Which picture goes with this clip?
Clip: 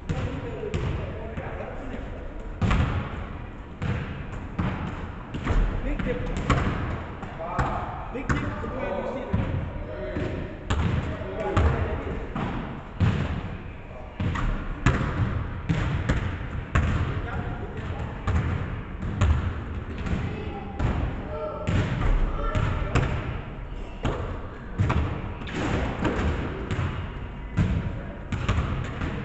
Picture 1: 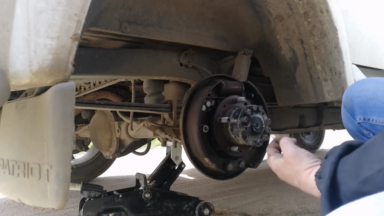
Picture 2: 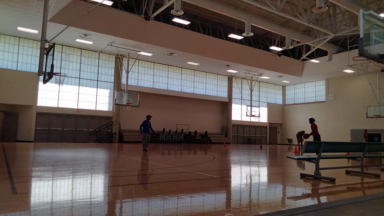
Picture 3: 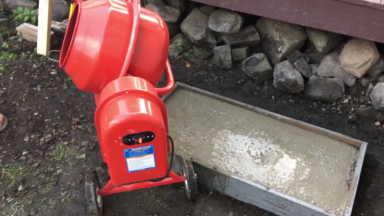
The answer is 2